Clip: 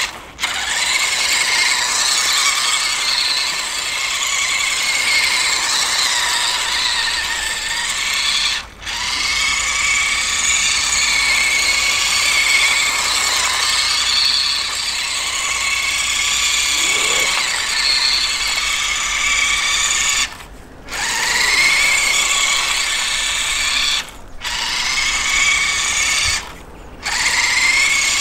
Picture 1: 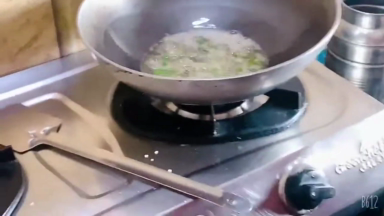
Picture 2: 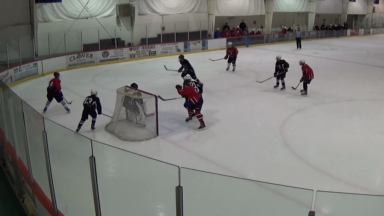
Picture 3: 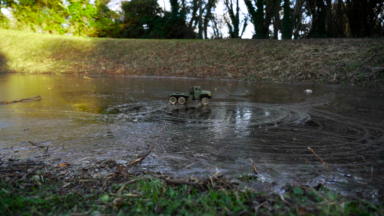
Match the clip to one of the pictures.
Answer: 3